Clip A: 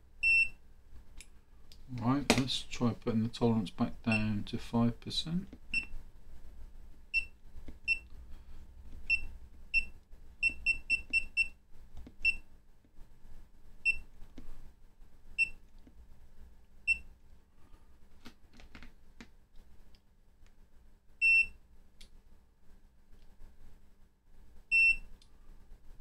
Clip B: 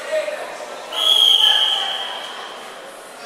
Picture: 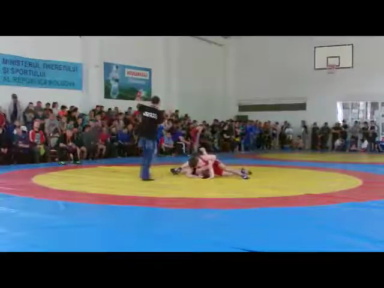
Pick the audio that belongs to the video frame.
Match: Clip B